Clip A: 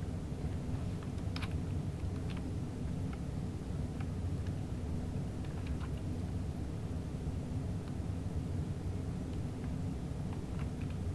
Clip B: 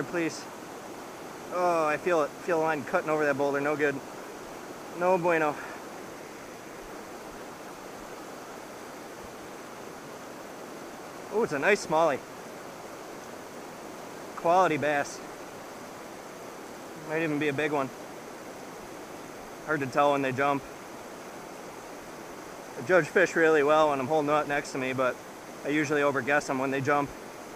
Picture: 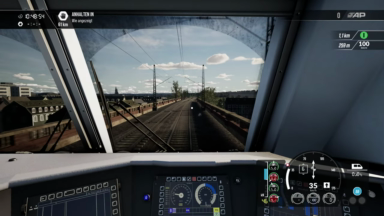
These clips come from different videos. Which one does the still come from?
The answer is A